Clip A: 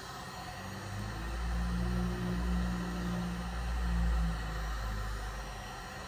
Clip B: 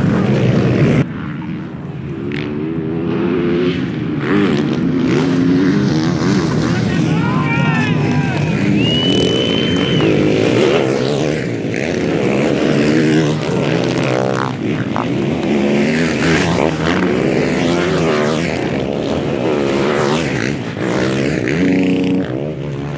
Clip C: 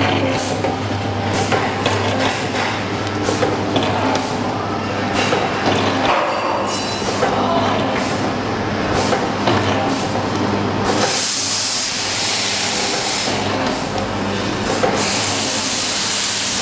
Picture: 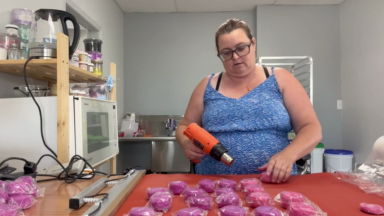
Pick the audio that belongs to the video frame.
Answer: A